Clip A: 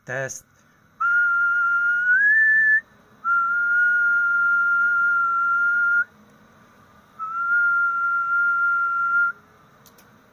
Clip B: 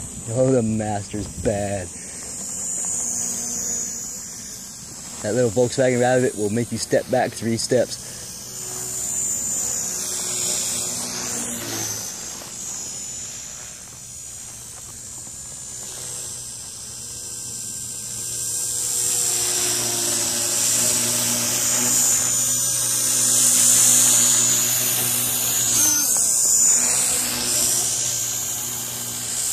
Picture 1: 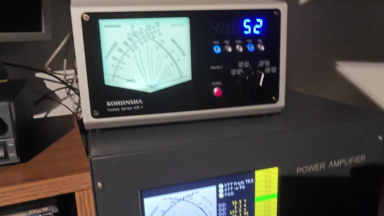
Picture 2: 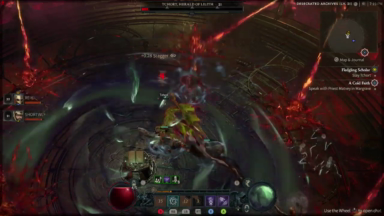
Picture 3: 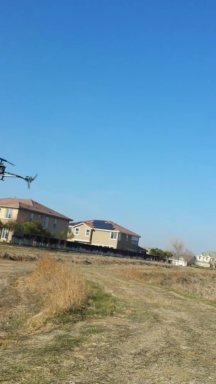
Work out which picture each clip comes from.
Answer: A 1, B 3